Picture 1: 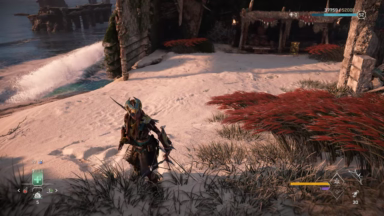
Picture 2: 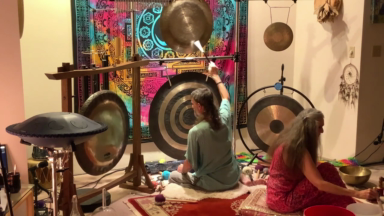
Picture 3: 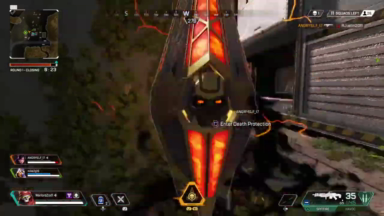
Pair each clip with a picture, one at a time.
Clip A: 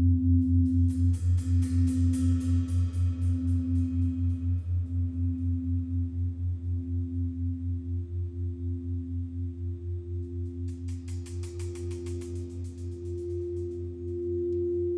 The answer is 2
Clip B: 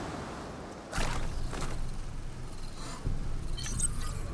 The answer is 1